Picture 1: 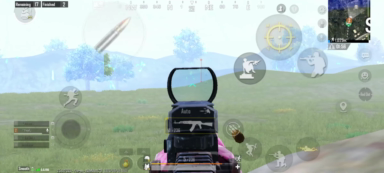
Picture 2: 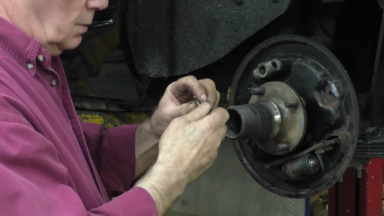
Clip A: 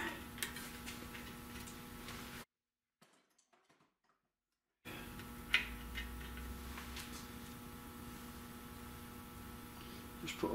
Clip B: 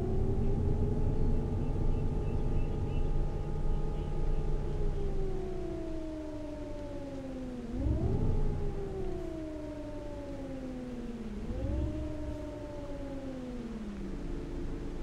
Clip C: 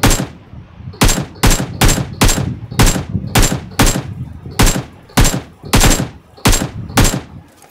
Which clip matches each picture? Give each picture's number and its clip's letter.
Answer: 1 C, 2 A